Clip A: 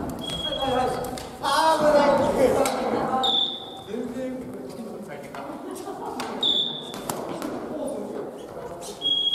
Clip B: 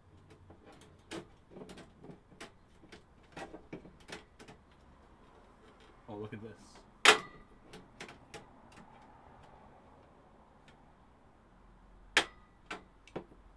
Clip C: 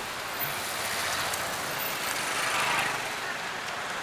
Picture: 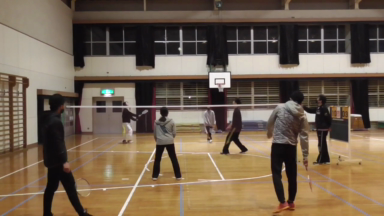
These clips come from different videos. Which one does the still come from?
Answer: A